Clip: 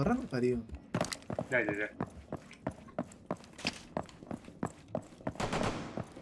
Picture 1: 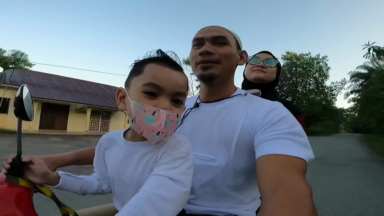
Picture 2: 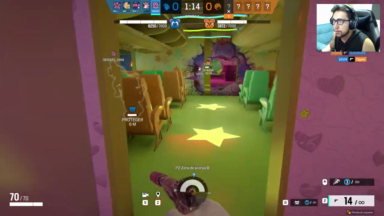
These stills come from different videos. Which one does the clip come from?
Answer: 2